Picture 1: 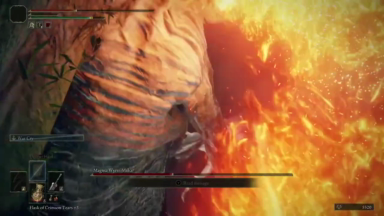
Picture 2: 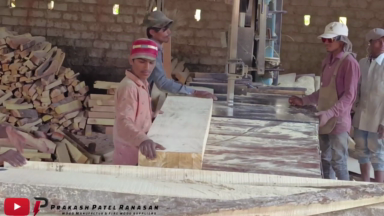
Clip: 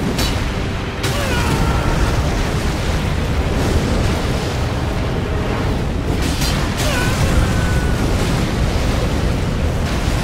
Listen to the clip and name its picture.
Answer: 1